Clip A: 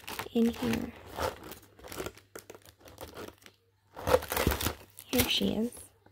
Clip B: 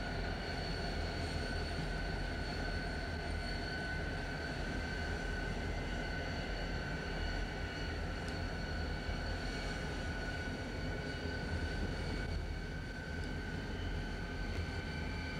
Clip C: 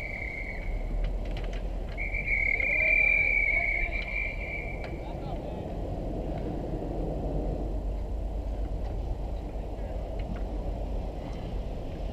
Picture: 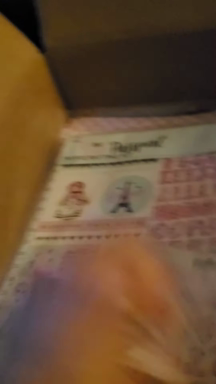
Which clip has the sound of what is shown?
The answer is A